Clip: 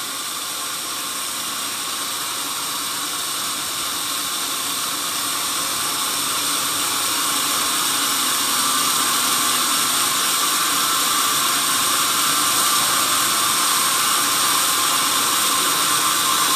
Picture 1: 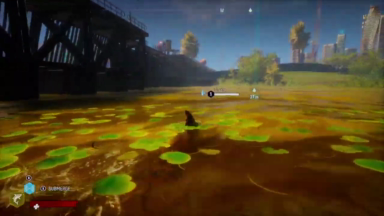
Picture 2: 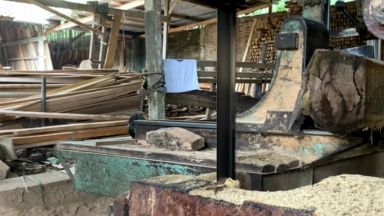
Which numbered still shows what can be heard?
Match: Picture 2